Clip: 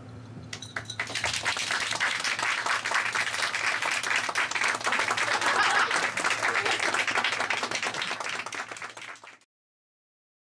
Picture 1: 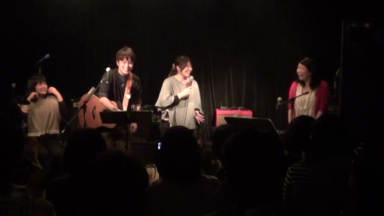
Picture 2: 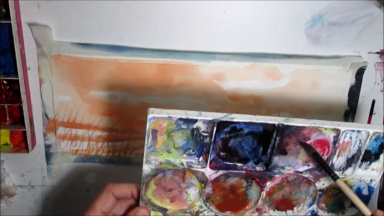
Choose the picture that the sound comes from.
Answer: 1